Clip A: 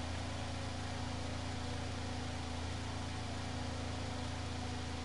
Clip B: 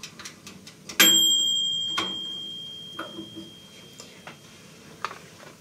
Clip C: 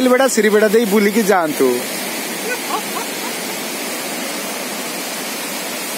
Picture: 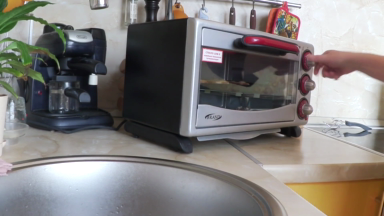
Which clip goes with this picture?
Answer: B